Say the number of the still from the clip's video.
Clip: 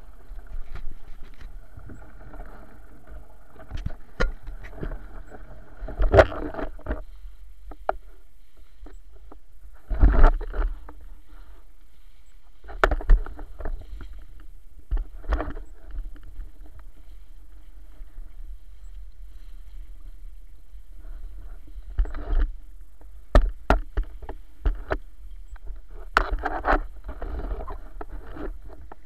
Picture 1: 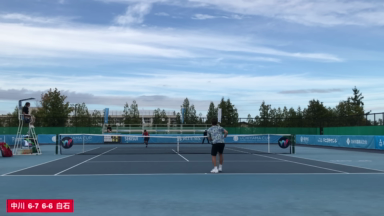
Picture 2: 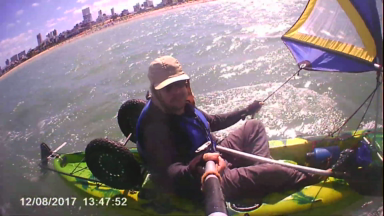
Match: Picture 2